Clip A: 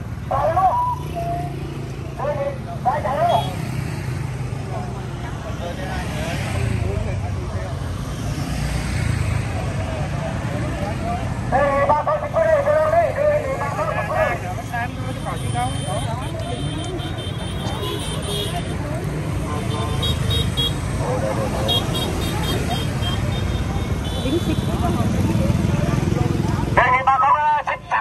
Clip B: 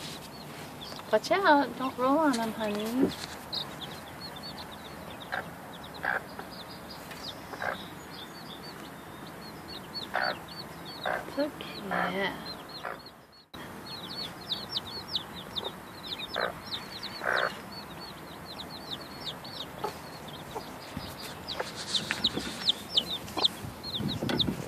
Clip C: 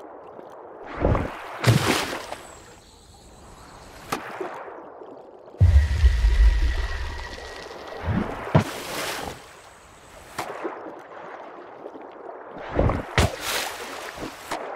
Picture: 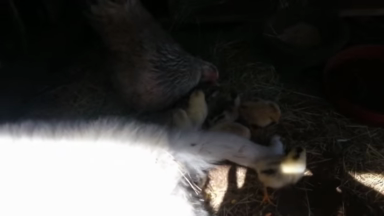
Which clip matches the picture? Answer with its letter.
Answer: B